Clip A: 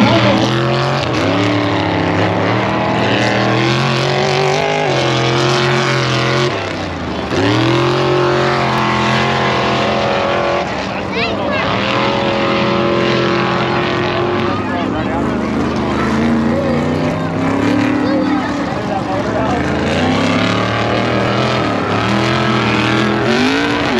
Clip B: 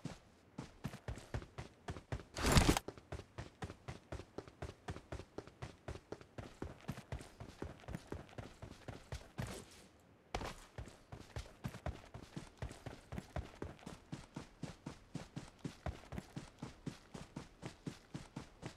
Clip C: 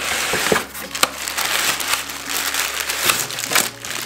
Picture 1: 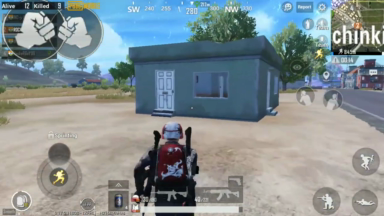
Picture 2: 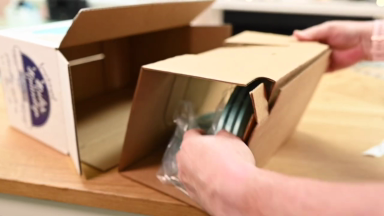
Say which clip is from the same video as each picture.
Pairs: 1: B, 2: C